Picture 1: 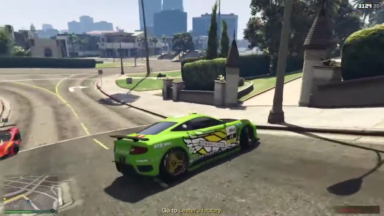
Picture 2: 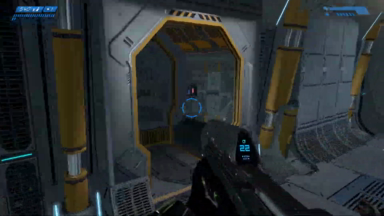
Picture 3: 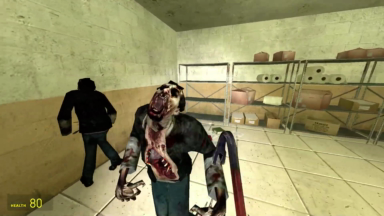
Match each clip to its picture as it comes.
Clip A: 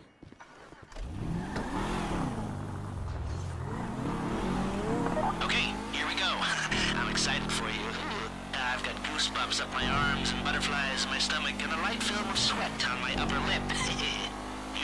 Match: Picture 1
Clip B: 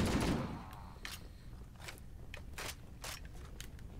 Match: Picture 2